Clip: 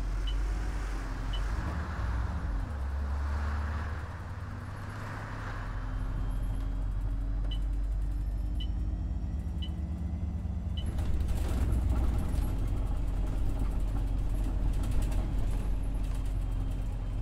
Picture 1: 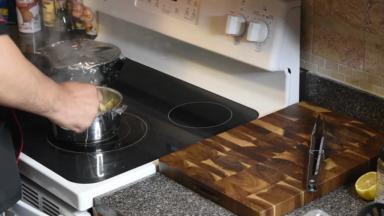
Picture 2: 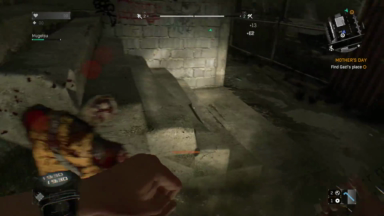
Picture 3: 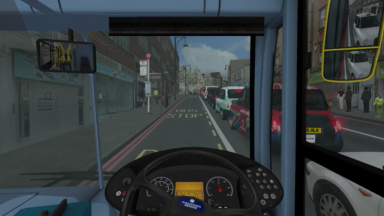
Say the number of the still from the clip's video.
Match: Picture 3